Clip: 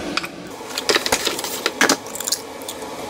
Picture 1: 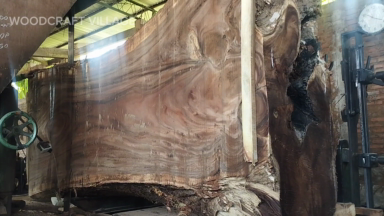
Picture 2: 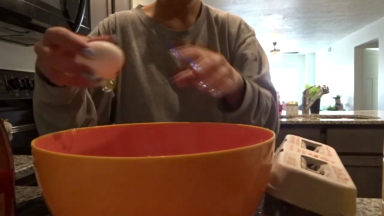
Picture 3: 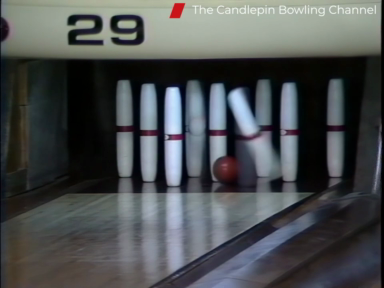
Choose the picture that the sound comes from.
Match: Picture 2